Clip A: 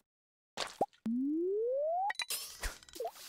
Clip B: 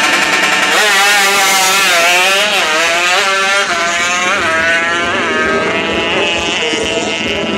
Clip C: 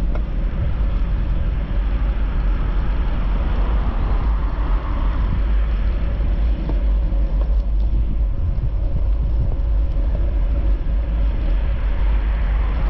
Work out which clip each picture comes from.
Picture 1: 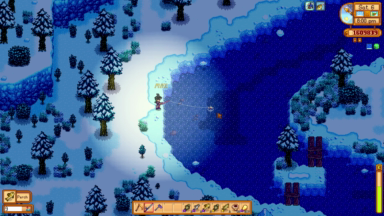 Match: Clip A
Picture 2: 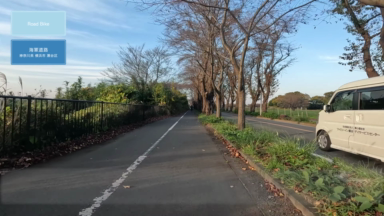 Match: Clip C